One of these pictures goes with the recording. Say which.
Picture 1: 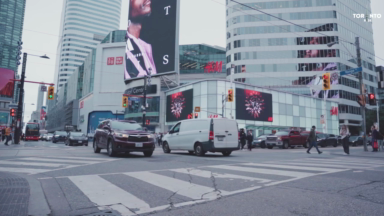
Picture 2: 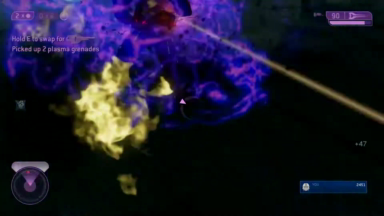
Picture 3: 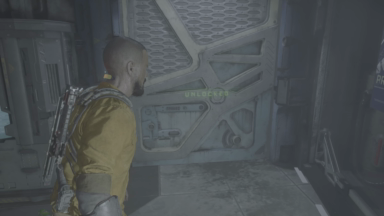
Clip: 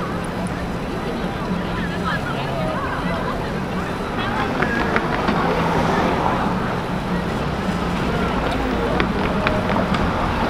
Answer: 1